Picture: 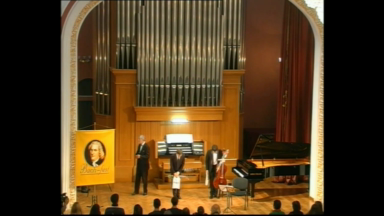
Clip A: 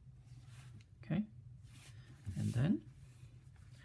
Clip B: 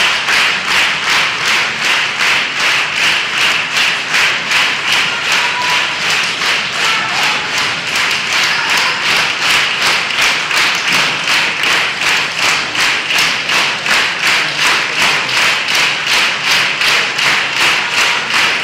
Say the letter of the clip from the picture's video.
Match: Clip B